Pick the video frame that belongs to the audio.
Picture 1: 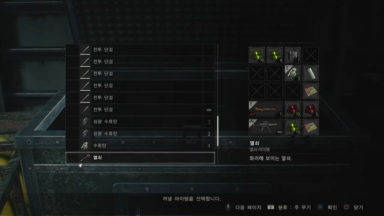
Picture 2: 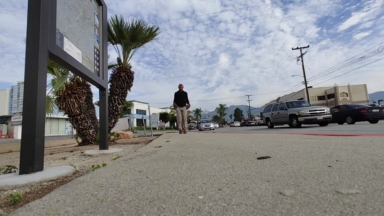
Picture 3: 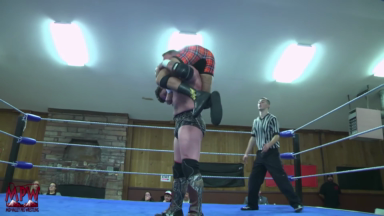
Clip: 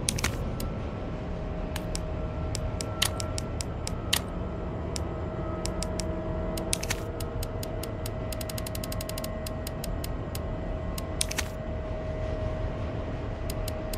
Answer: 1